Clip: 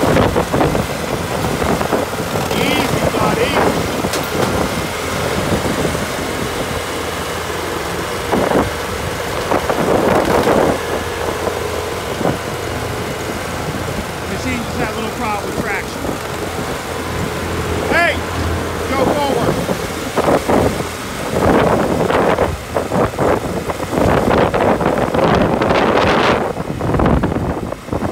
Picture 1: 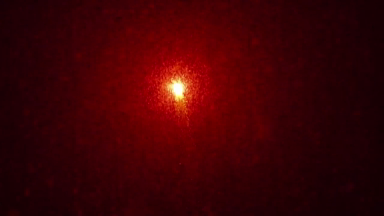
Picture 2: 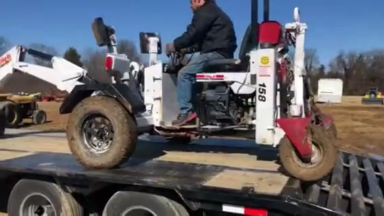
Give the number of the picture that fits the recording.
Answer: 2